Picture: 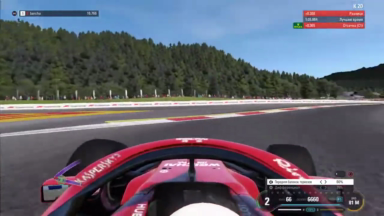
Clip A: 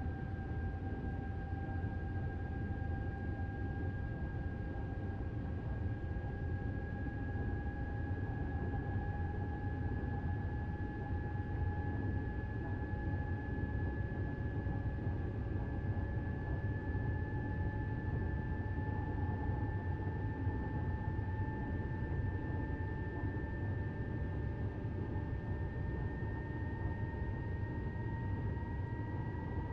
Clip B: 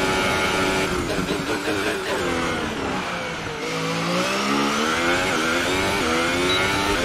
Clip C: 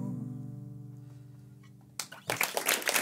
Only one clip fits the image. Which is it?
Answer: B